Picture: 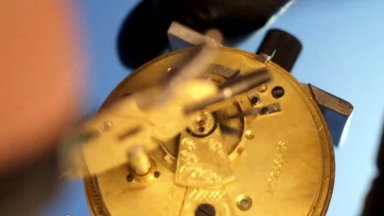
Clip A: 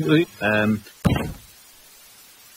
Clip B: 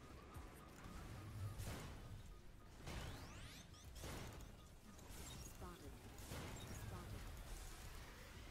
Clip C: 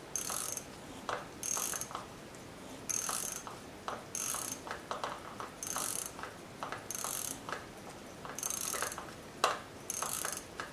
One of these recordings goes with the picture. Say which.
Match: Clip C